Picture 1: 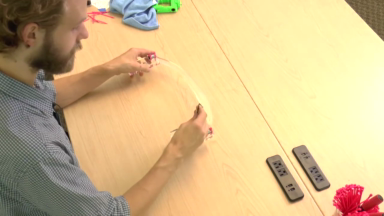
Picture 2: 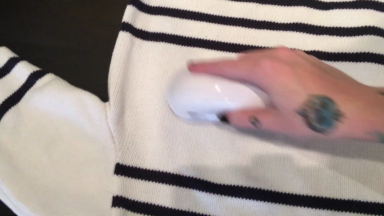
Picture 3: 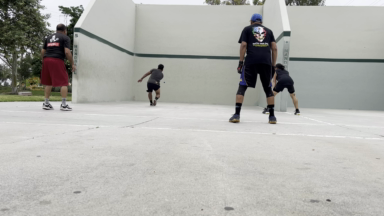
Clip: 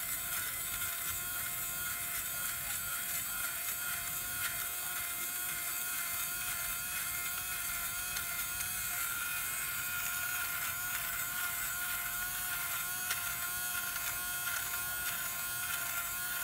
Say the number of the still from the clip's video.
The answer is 2